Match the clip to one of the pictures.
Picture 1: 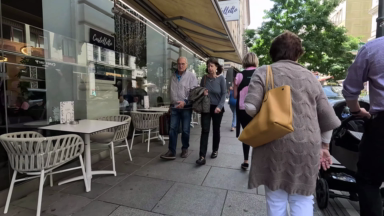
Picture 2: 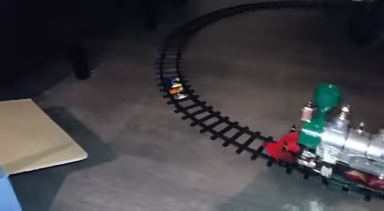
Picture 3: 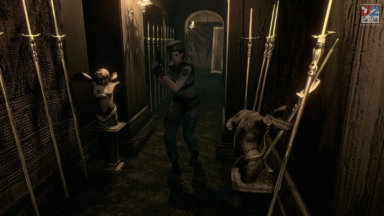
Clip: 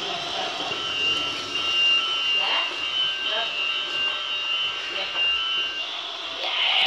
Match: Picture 2